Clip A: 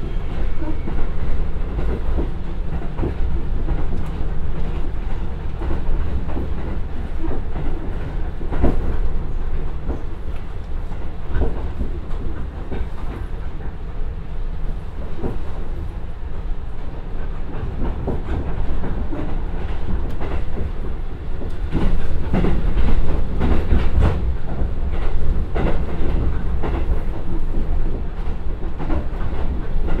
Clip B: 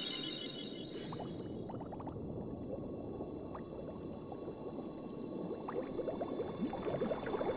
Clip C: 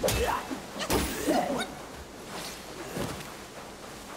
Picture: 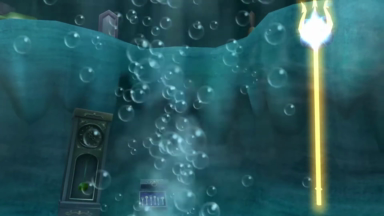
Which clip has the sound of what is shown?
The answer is B